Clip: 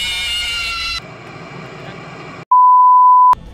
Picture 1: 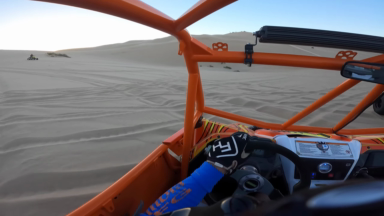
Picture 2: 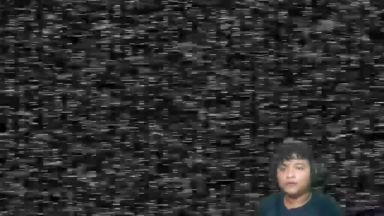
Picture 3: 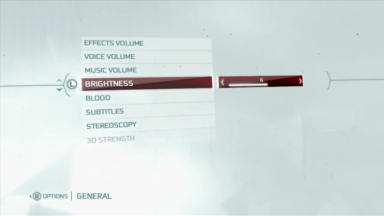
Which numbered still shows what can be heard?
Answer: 2